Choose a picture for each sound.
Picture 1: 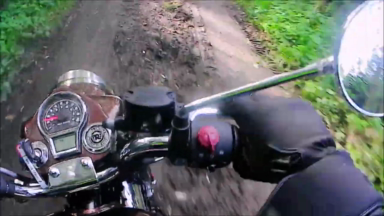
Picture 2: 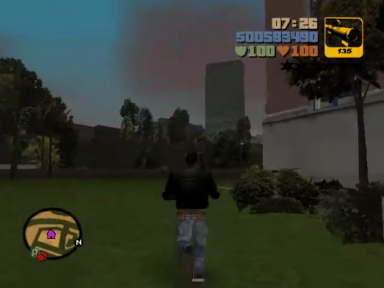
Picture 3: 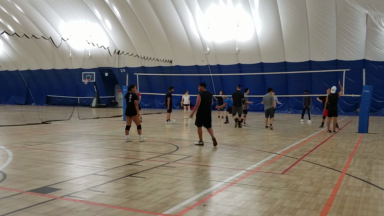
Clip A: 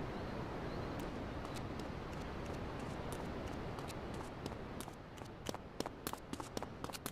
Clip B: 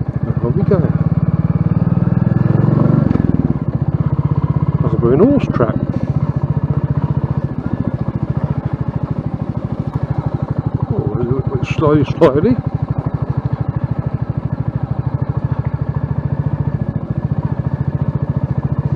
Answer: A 2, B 1